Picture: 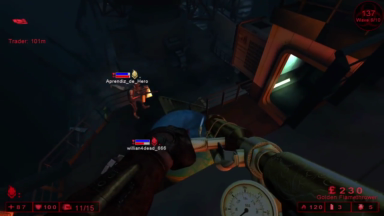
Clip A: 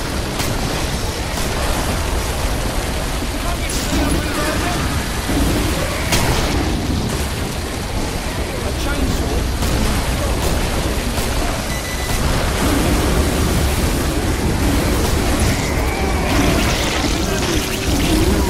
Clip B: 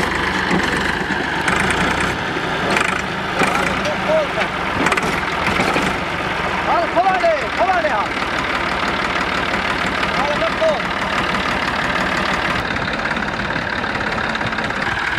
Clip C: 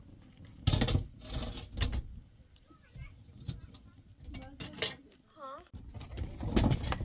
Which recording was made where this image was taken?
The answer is A